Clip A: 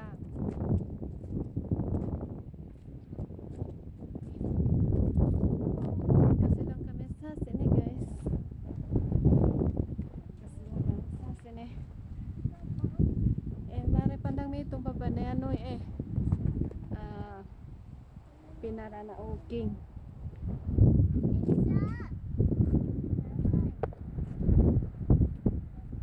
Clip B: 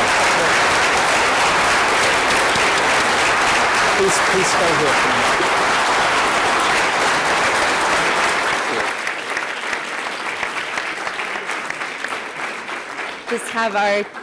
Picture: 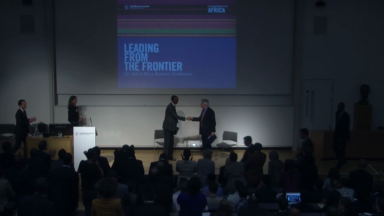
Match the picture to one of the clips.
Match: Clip B